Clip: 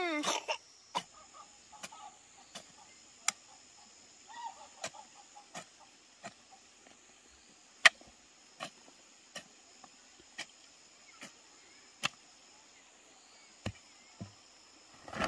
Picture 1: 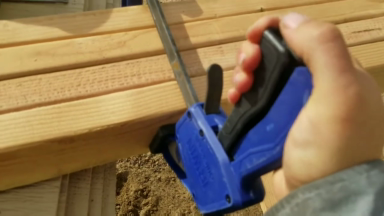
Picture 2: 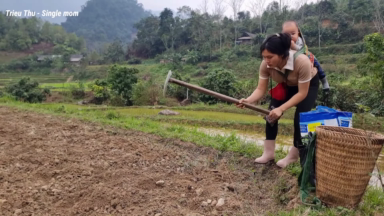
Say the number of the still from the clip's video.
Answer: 2